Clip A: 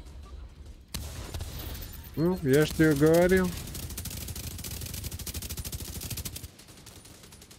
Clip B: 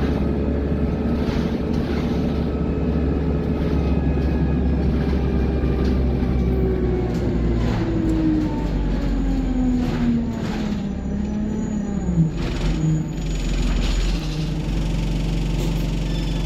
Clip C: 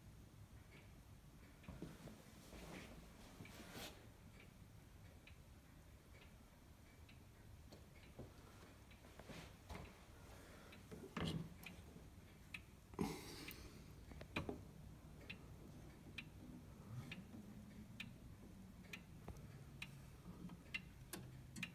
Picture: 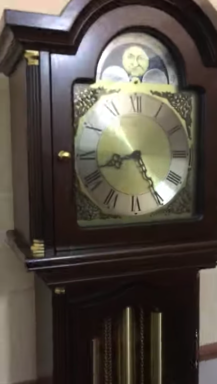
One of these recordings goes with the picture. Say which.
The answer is C